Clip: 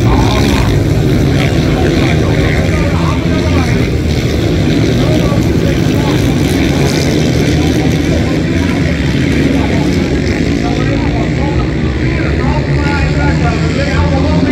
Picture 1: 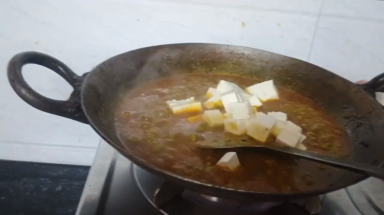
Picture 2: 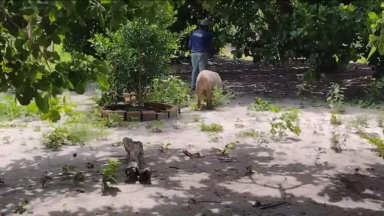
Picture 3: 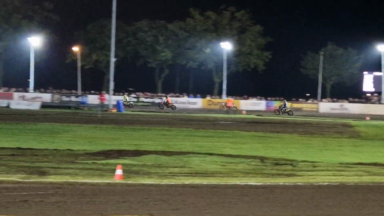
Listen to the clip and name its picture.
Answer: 3